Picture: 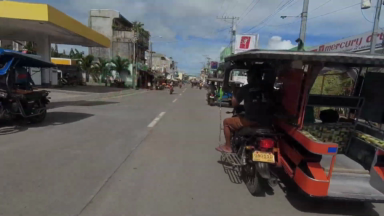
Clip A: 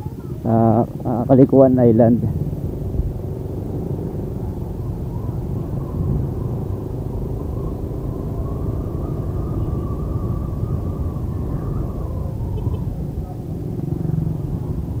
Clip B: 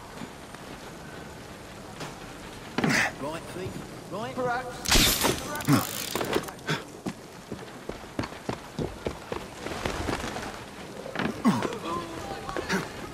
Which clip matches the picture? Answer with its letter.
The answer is A